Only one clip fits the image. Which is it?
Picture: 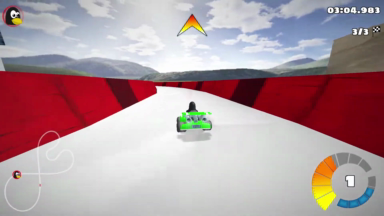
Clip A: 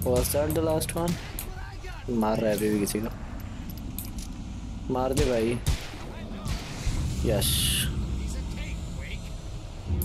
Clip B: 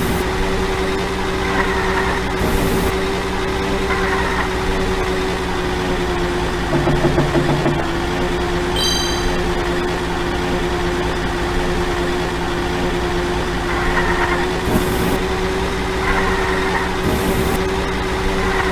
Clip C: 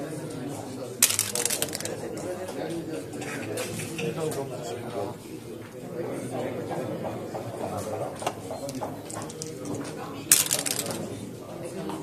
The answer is B